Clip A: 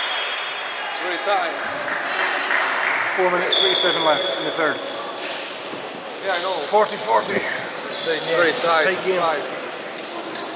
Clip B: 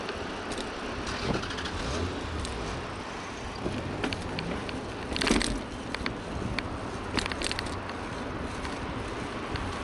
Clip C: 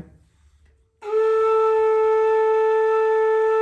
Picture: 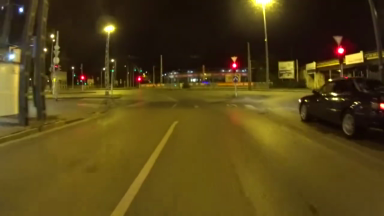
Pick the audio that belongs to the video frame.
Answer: B